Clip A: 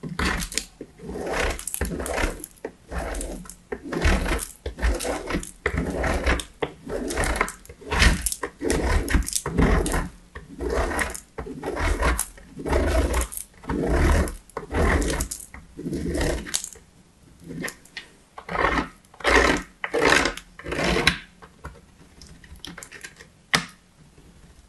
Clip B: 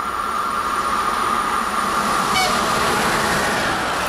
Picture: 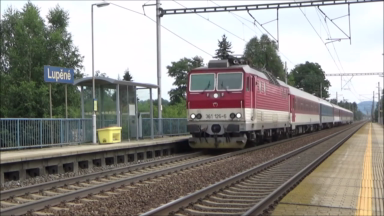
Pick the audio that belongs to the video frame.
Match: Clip B